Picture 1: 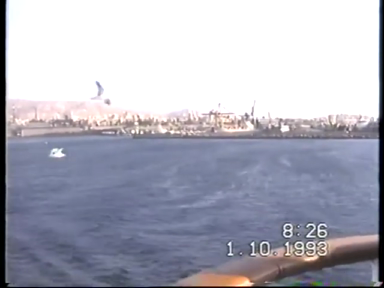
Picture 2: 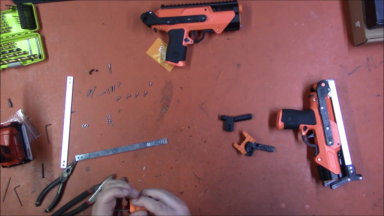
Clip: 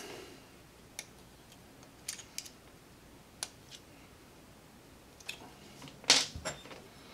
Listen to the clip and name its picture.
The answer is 2